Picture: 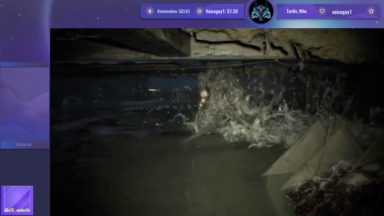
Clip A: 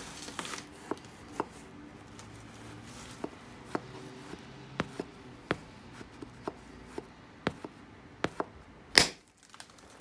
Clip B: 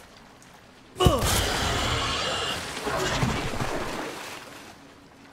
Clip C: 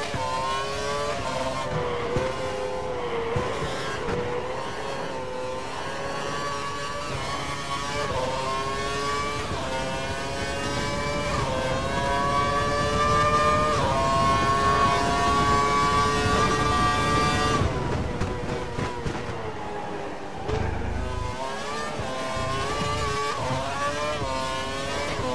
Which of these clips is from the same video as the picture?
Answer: B